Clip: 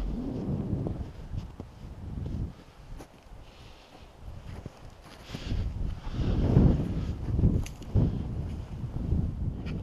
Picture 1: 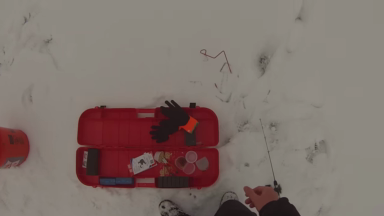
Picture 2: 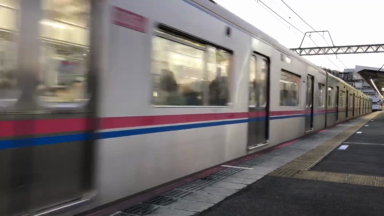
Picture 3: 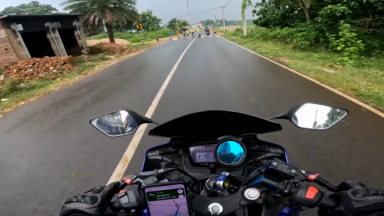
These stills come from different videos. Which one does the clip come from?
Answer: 1